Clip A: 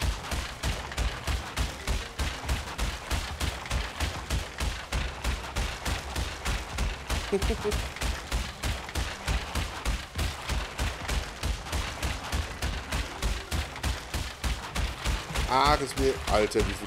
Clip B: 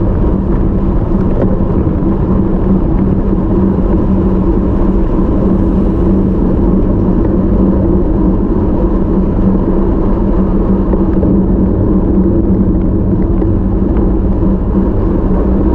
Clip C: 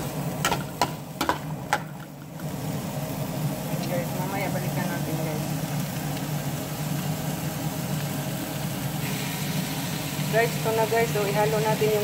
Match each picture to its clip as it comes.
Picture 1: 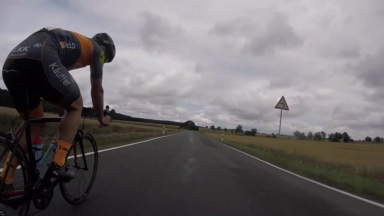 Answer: B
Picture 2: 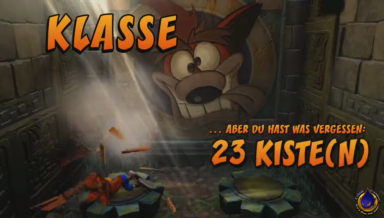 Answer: A